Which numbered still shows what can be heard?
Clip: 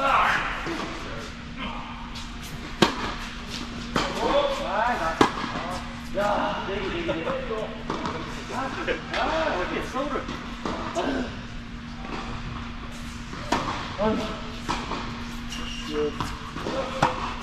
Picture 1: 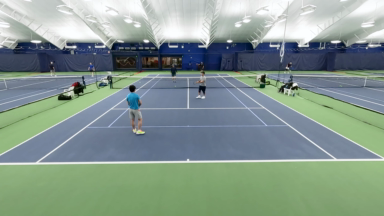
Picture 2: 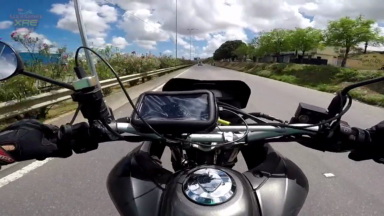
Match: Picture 1